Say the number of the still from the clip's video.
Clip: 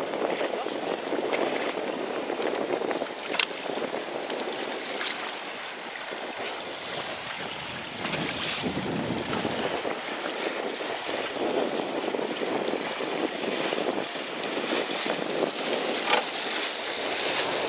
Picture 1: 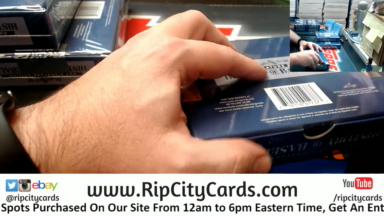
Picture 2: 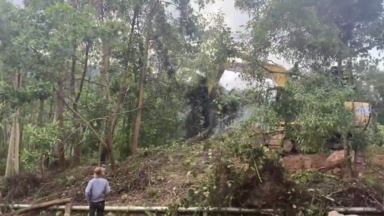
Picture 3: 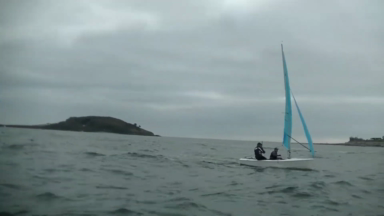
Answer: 3